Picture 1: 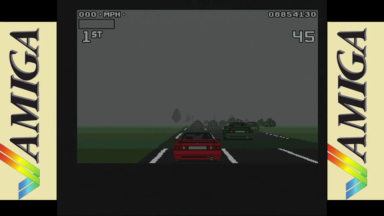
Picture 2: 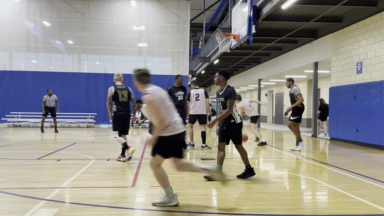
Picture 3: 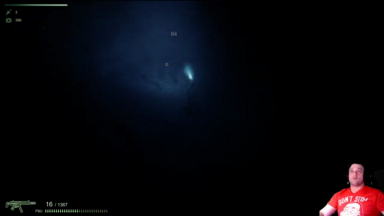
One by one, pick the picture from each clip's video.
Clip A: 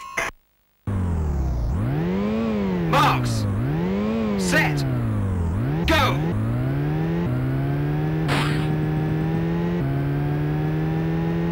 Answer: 1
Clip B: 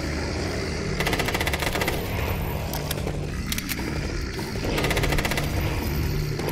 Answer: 3